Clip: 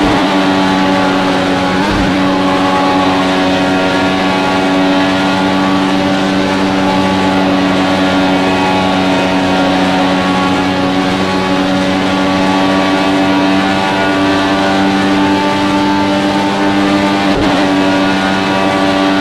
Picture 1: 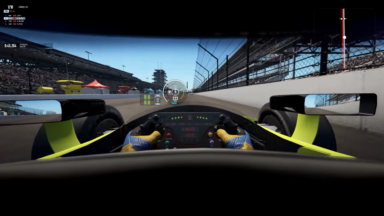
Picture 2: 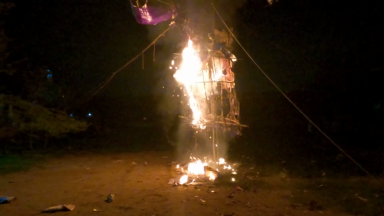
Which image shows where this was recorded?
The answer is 1